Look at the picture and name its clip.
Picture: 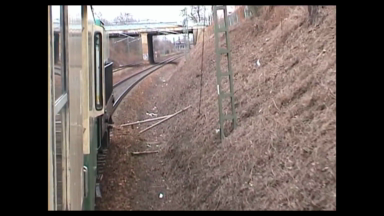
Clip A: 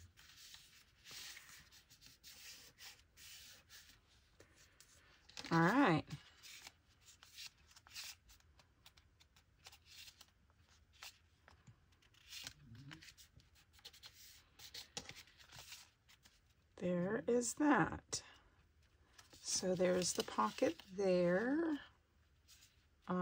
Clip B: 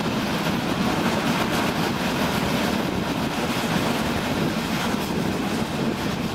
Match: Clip B